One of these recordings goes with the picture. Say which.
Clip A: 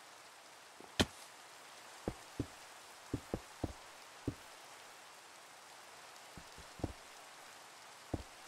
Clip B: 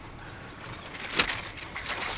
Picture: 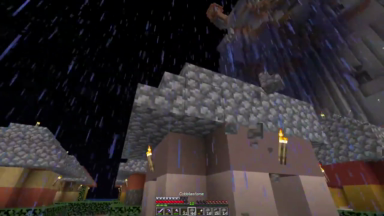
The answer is A